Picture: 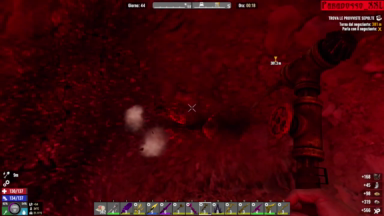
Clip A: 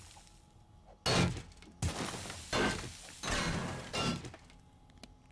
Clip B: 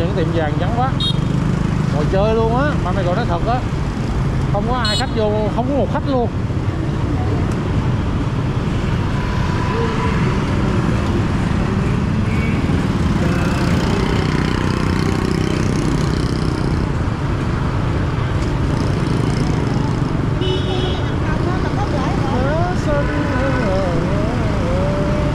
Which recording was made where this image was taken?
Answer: A